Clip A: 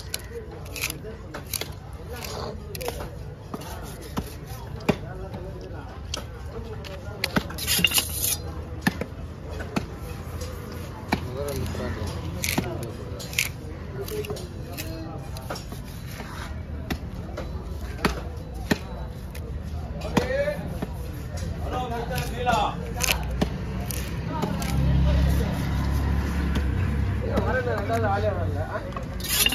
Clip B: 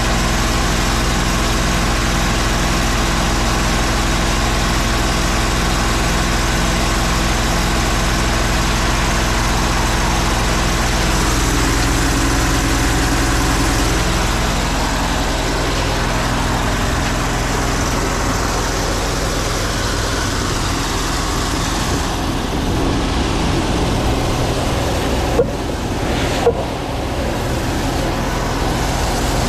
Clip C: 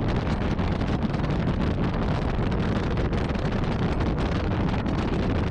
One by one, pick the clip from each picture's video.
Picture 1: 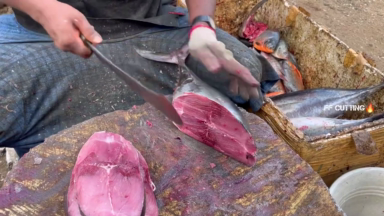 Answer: A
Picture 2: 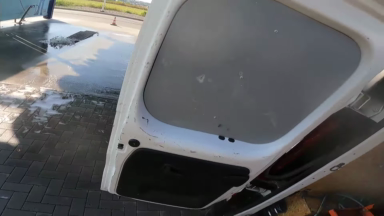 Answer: B